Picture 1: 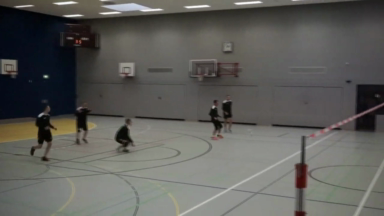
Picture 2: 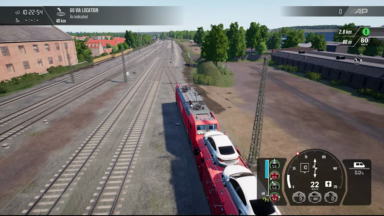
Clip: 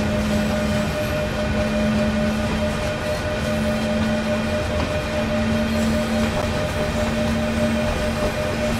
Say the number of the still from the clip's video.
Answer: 2